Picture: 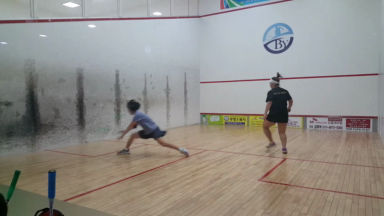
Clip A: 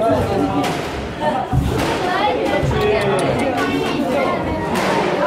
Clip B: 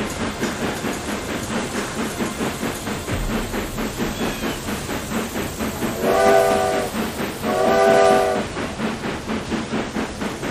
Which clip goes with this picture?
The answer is A